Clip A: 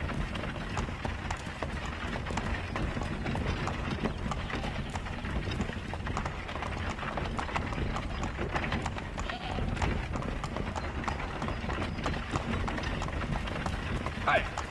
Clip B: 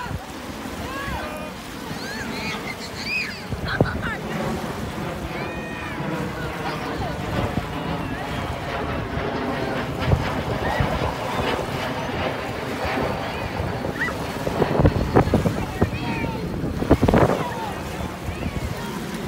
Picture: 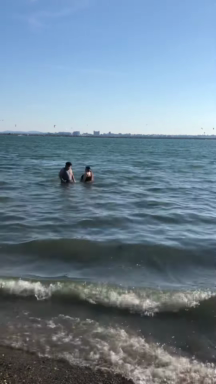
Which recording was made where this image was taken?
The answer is B